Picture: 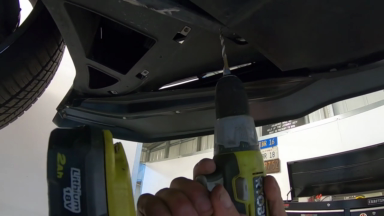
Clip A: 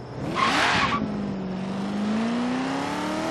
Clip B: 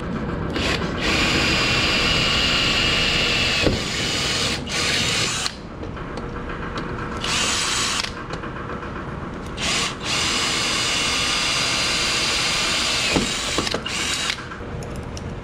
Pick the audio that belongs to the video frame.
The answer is B